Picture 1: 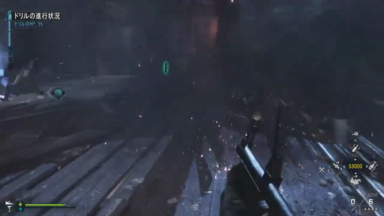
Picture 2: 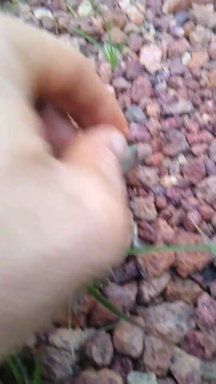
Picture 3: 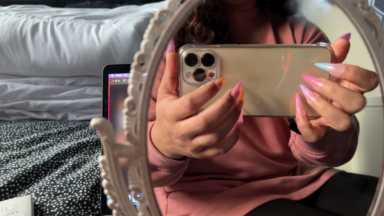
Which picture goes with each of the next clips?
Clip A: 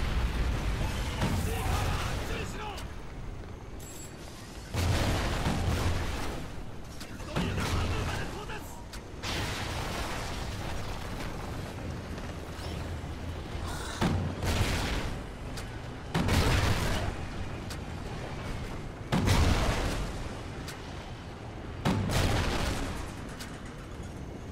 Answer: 1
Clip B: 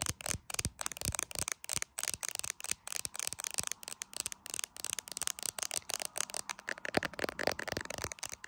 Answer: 3